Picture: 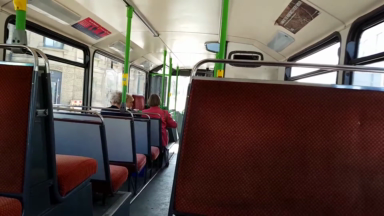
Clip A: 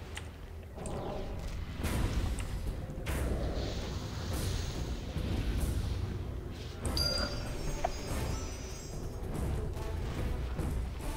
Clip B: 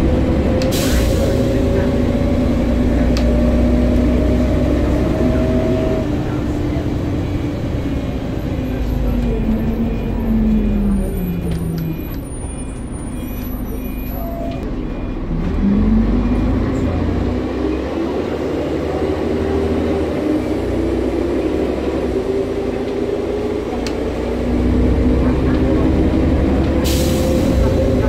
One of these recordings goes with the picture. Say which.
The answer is B